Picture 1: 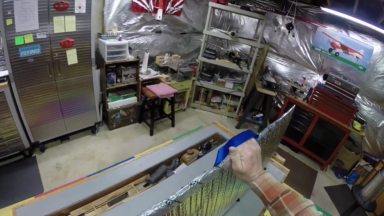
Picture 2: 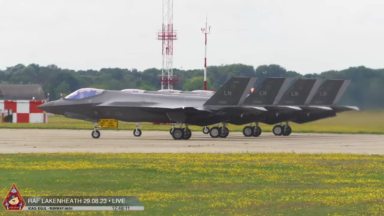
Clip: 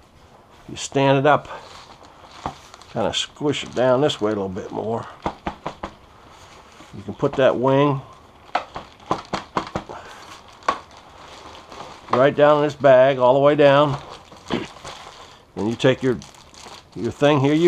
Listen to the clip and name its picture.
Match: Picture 1